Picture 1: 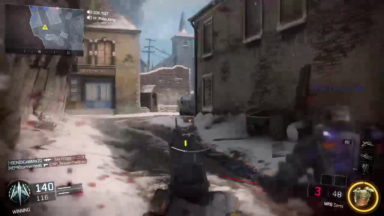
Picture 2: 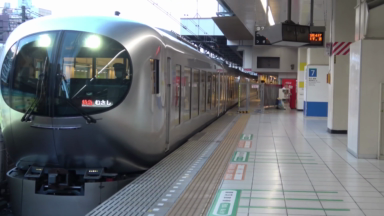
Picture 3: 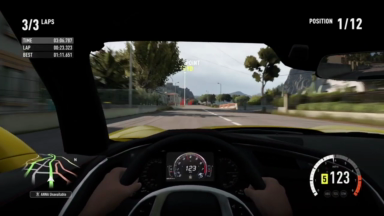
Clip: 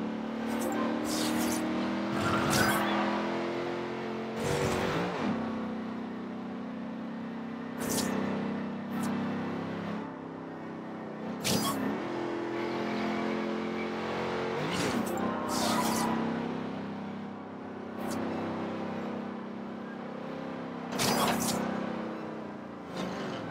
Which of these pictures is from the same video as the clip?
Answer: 3